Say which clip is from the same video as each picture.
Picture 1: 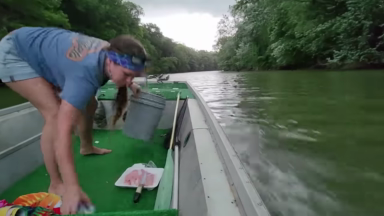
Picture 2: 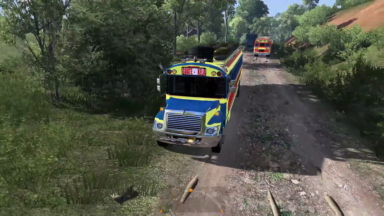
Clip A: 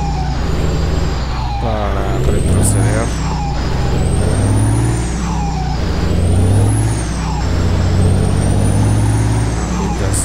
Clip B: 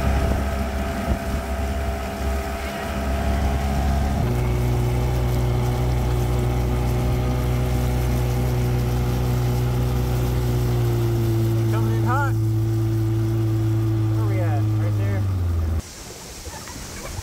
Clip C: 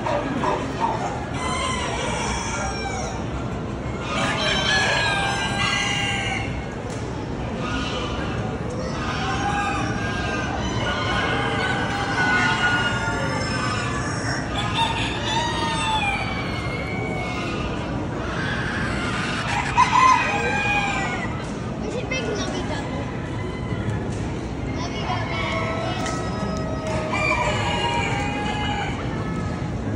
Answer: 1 B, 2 A